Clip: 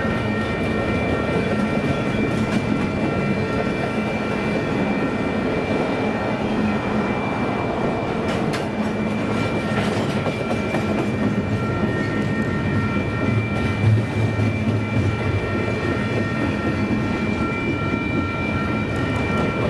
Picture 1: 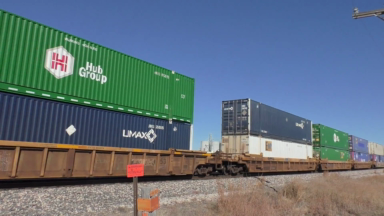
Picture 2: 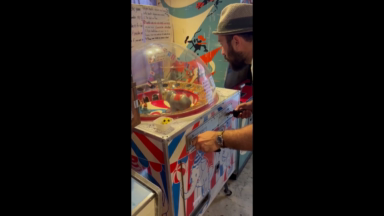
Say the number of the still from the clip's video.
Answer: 1